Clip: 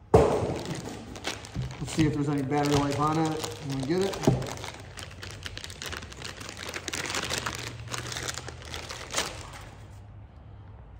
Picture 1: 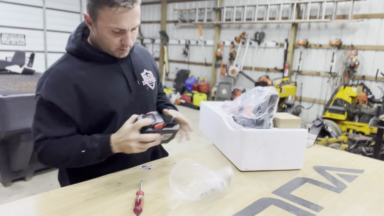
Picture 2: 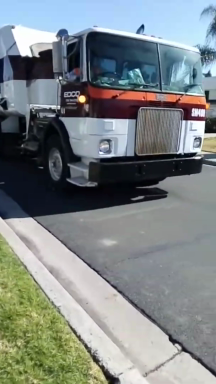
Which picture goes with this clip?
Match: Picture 1